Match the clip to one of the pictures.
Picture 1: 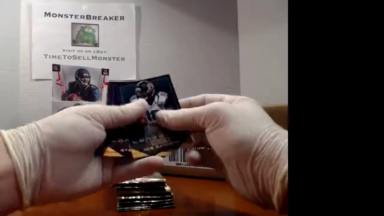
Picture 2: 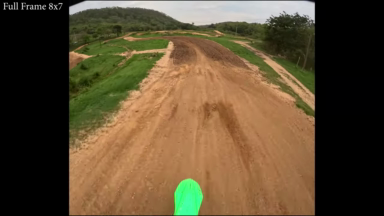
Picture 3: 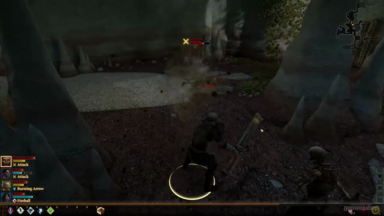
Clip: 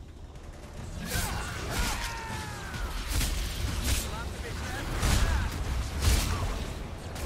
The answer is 3